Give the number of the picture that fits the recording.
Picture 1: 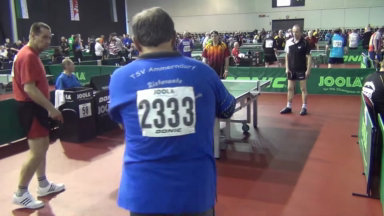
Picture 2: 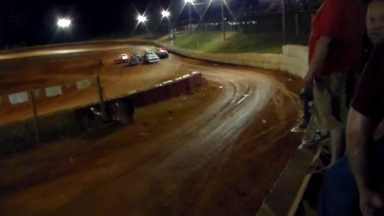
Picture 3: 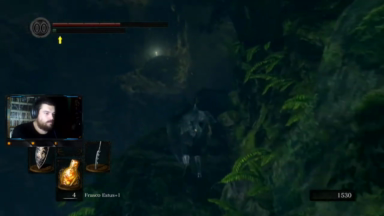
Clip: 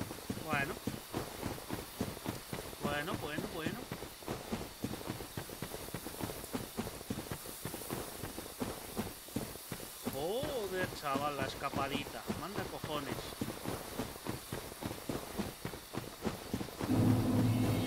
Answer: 3